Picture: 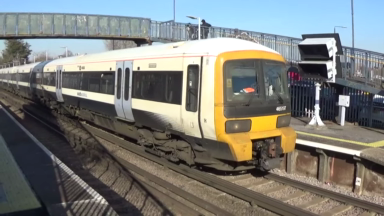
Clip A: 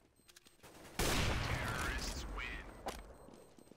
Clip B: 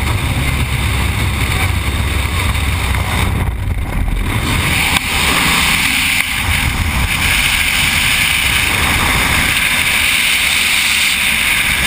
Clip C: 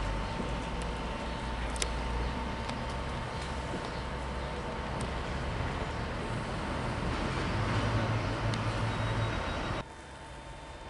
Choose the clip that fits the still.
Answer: C